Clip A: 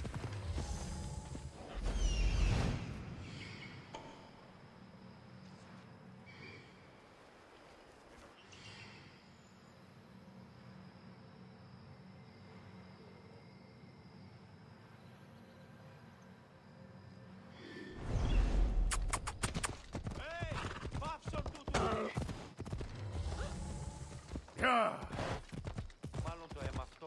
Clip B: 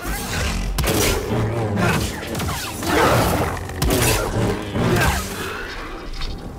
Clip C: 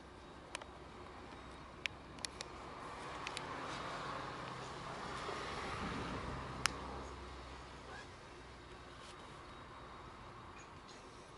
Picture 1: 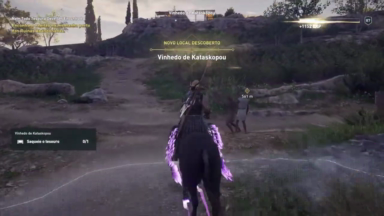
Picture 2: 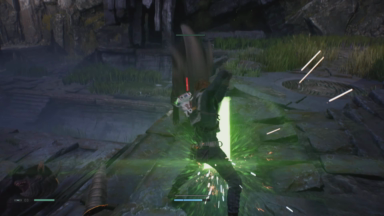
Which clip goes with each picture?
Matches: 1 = A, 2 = B